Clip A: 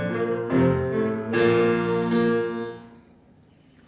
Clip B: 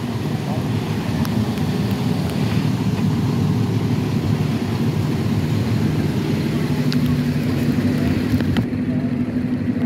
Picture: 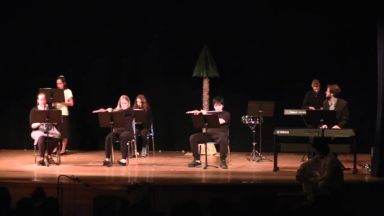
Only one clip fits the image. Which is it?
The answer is A